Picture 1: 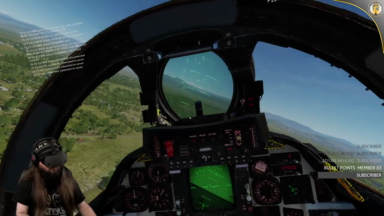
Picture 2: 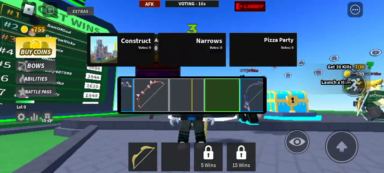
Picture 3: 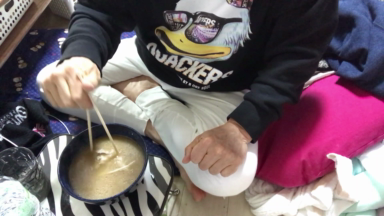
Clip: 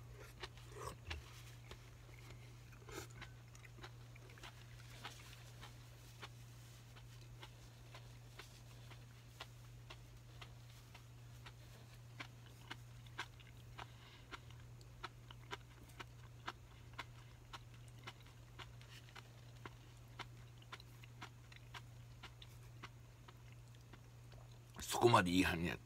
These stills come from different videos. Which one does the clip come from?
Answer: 3